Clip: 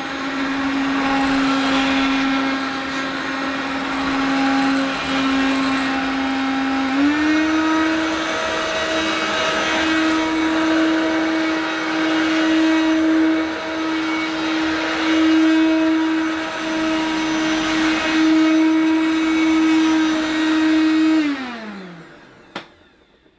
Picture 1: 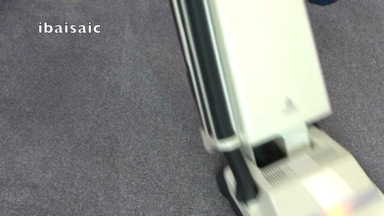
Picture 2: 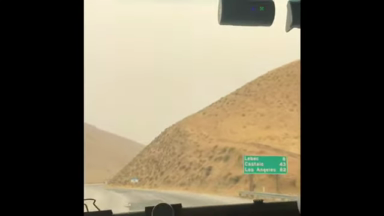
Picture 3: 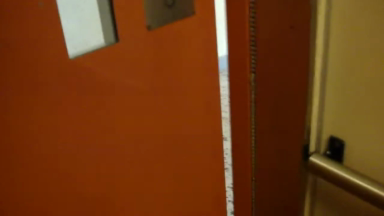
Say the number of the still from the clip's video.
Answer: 1